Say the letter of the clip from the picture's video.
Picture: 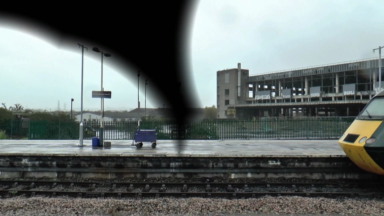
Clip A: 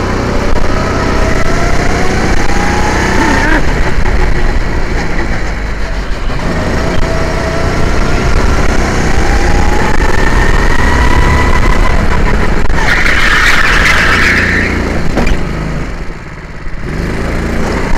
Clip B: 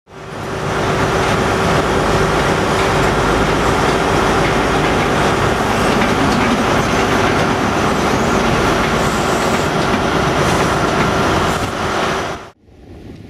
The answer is B